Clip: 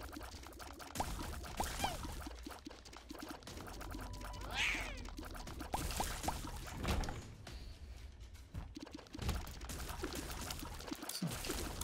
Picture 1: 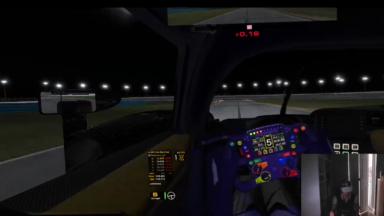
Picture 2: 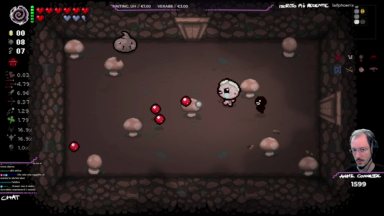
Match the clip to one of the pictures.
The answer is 2